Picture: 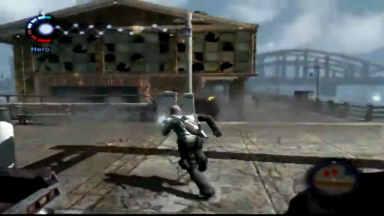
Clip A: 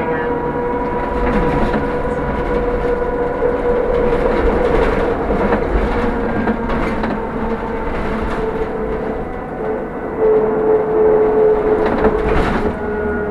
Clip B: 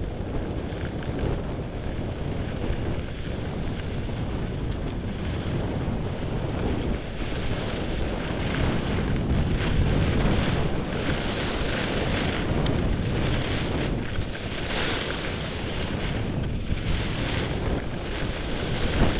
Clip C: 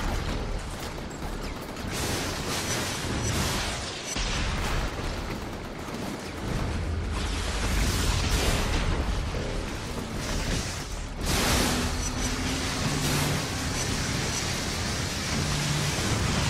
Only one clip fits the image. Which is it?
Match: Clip C